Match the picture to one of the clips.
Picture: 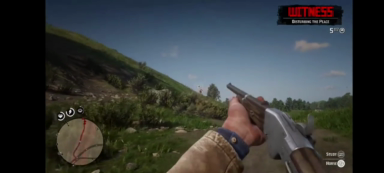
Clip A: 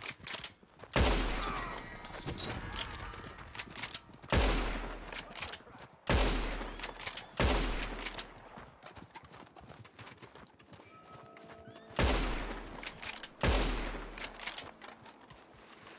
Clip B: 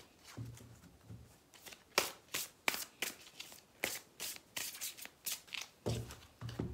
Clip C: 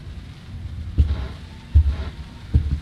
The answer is A